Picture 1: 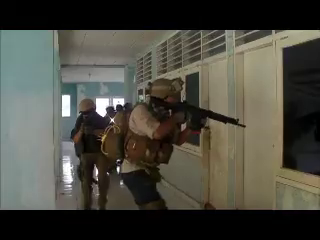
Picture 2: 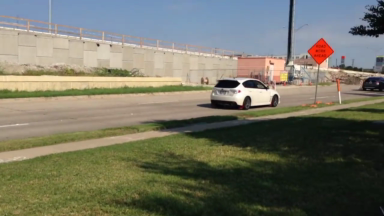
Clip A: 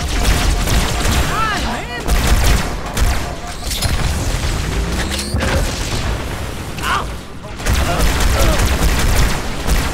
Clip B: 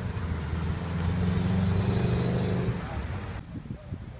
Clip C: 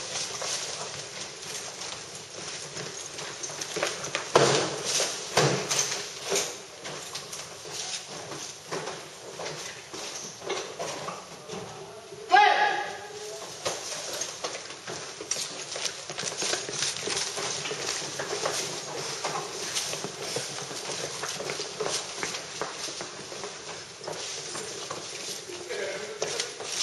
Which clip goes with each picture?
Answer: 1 C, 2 B